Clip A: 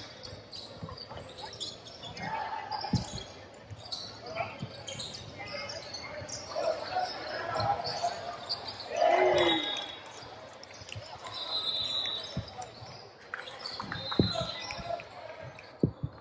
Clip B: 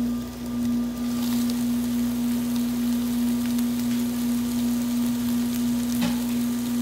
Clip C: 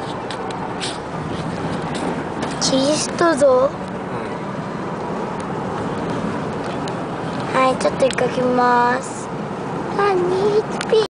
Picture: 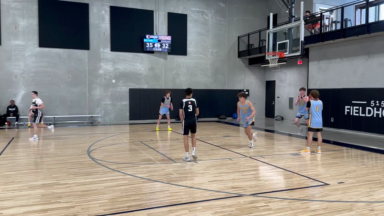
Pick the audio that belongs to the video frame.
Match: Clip A